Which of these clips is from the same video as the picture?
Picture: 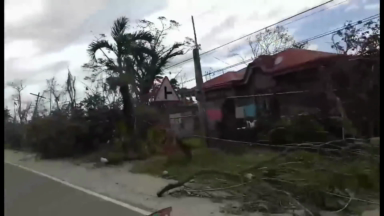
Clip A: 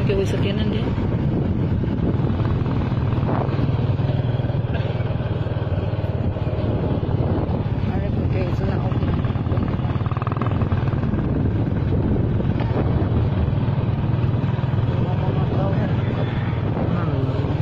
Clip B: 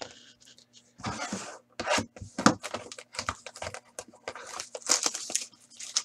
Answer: A